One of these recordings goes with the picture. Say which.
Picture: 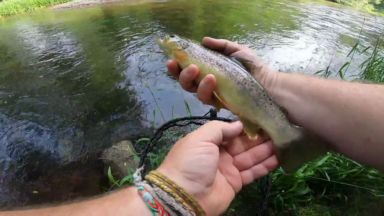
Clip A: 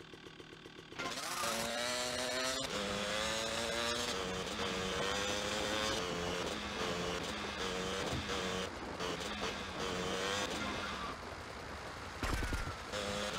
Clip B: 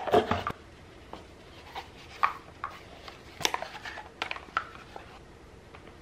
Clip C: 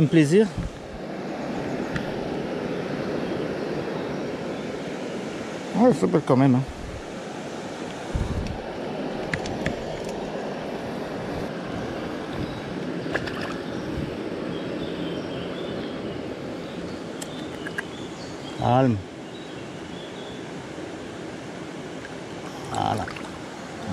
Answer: C